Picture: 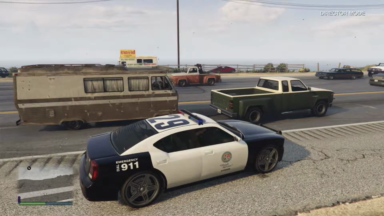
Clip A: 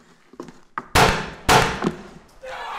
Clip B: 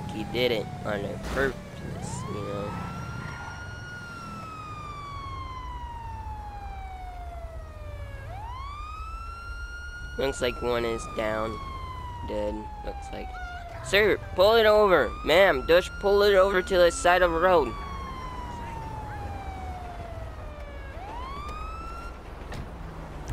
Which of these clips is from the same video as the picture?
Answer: B